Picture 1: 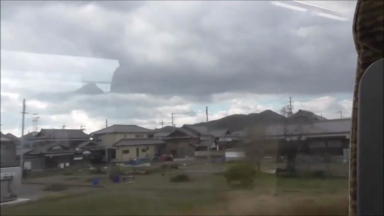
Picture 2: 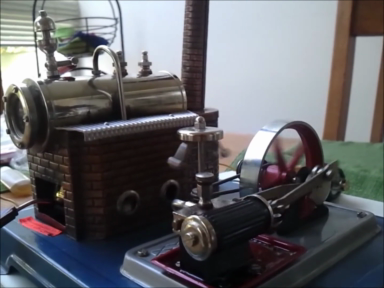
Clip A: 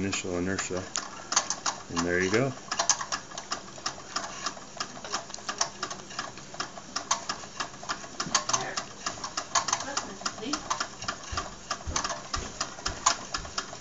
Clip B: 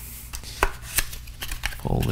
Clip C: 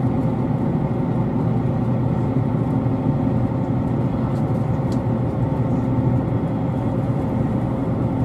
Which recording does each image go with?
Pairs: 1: C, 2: A